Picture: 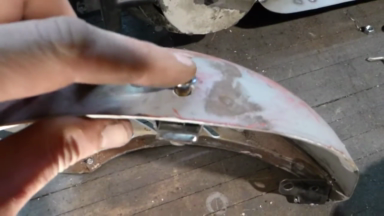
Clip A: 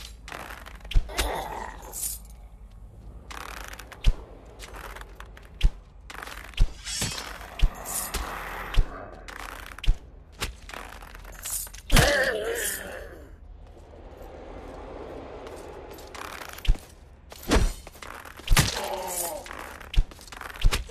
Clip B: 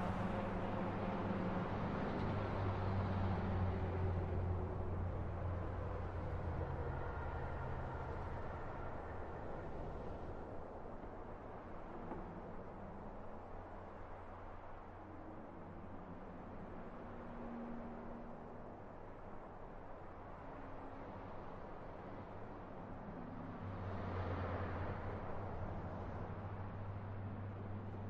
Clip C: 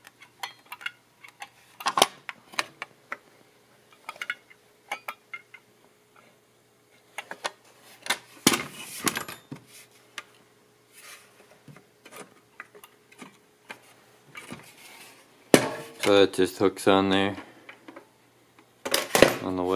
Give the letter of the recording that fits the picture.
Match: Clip C